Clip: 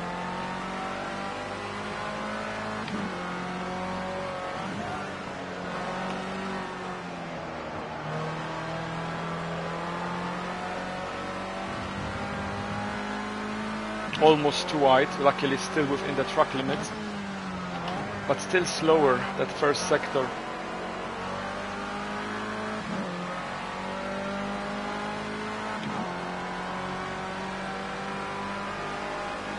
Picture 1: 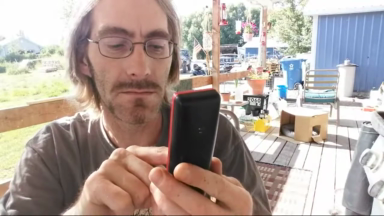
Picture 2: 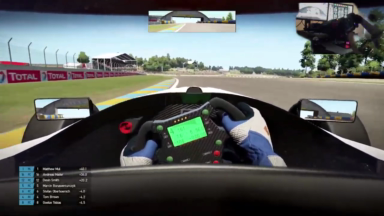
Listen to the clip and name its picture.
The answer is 2